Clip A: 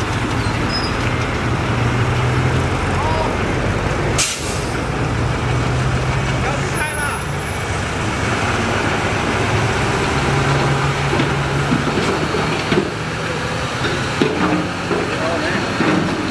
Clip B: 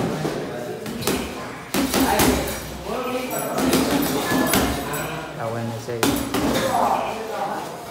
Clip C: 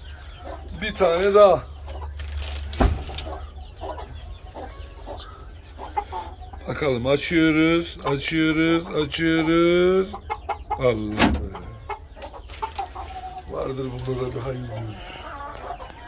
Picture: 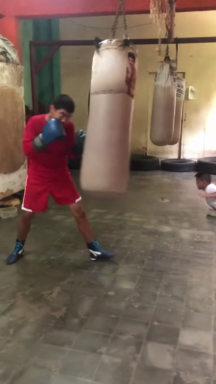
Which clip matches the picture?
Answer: B